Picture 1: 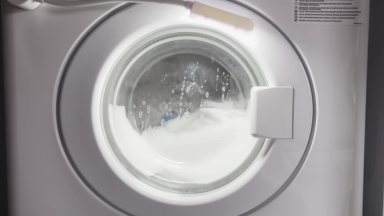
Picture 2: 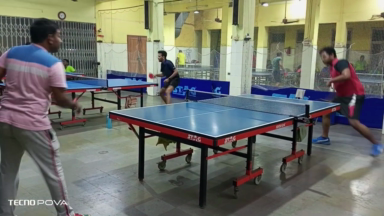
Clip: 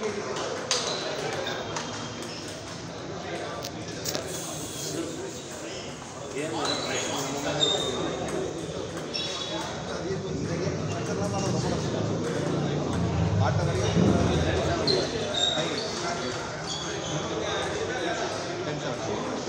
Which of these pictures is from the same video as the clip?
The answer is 2